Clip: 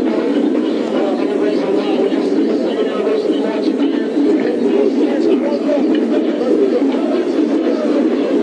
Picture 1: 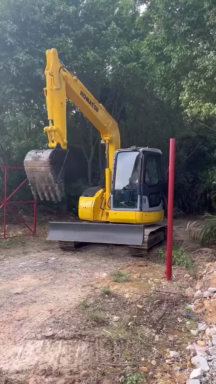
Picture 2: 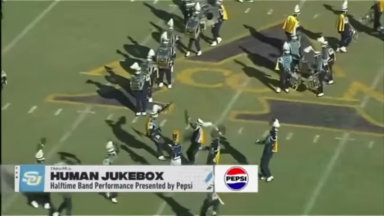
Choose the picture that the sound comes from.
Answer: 2